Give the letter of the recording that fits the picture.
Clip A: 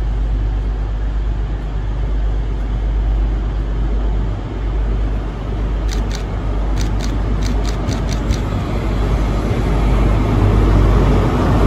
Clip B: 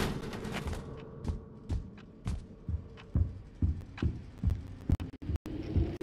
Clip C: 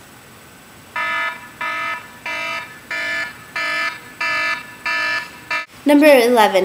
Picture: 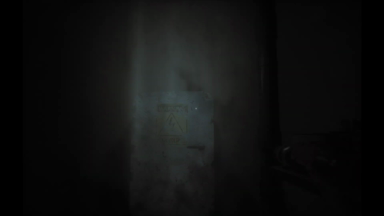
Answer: B